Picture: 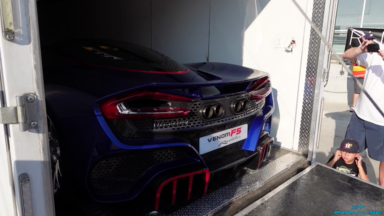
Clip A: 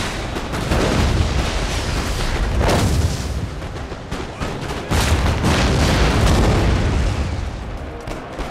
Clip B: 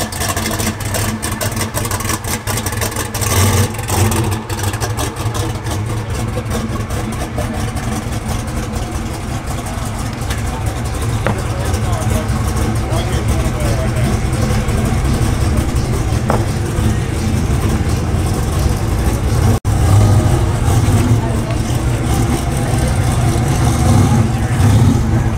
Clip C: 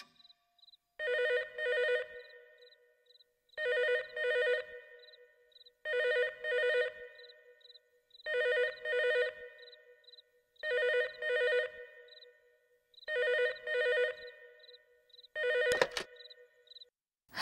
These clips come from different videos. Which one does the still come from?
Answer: B